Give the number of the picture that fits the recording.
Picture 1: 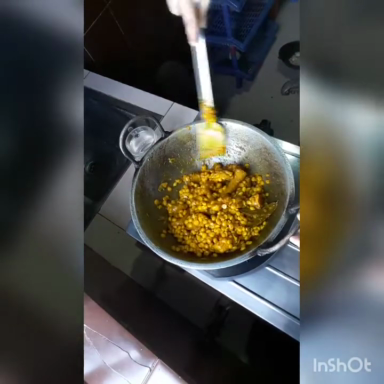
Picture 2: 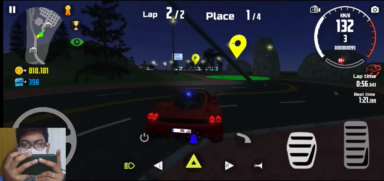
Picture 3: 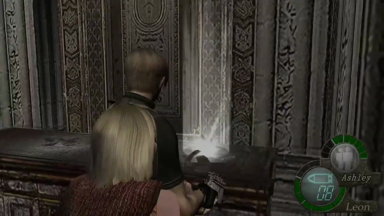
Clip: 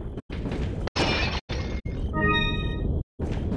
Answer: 3